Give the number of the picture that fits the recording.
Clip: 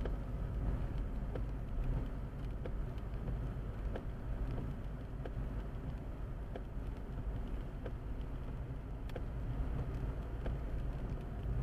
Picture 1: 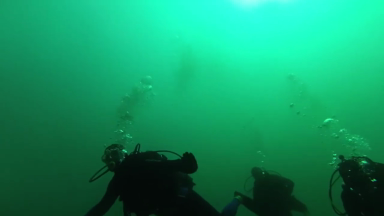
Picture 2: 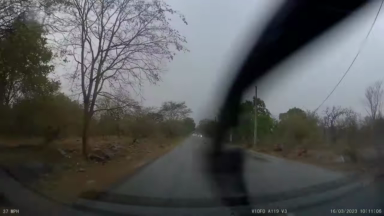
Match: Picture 2